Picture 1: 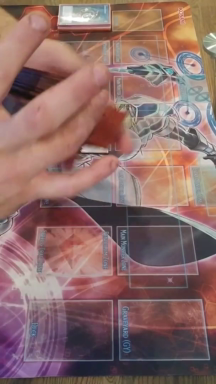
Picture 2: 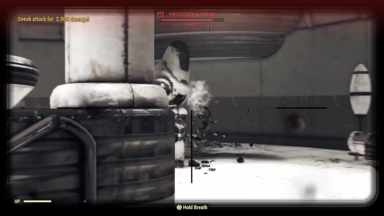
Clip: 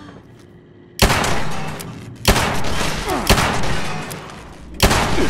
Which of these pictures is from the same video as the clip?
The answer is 2